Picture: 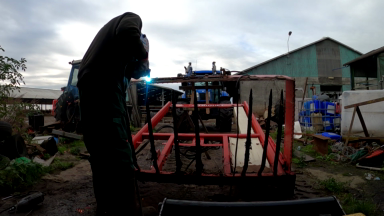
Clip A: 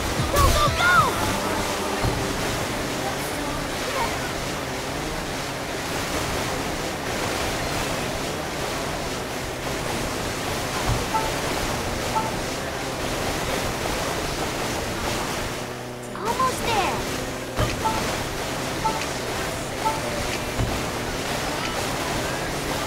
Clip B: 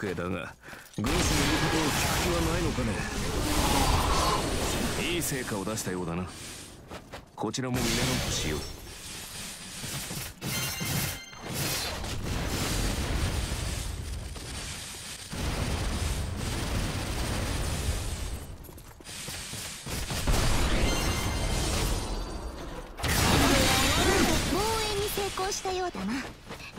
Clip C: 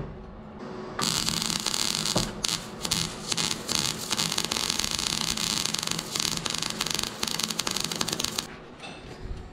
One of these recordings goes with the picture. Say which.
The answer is C